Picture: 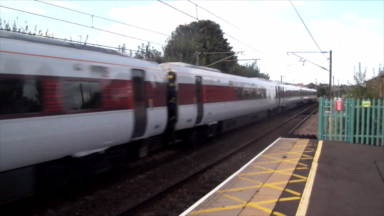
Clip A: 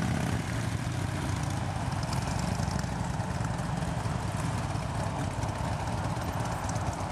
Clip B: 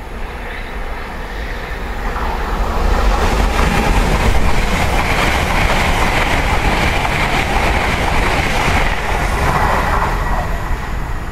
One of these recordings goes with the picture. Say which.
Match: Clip B